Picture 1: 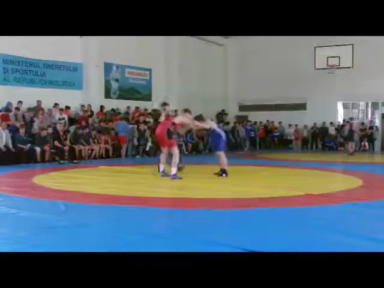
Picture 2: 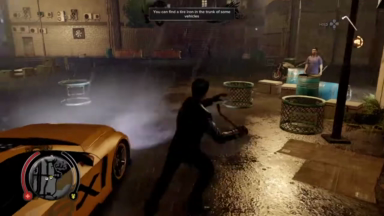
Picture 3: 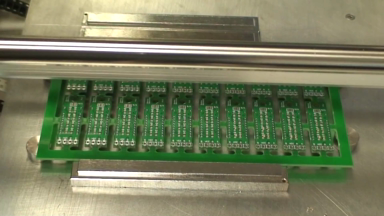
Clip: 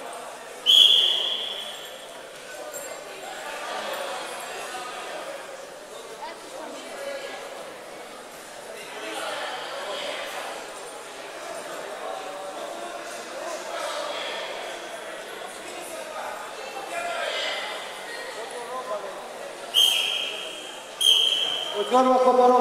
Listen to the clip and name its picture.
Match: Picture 1